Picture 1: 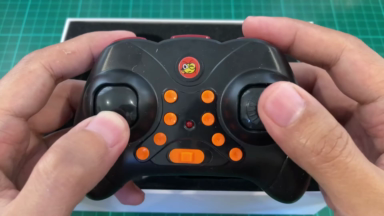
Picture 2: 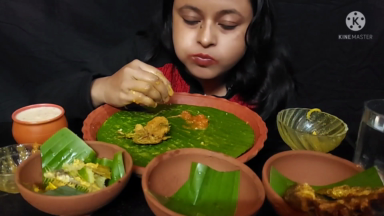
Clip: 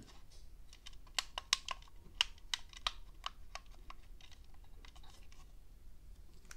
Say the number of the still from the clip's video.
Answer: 1